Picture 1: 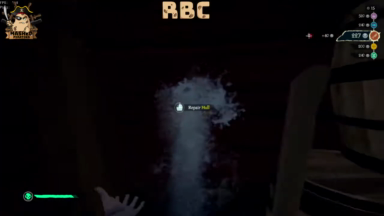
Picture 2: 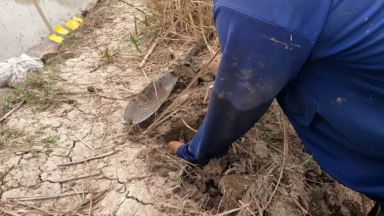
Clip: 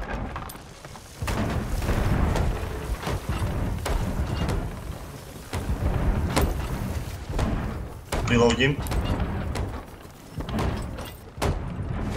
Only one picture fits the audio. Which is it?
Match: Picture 1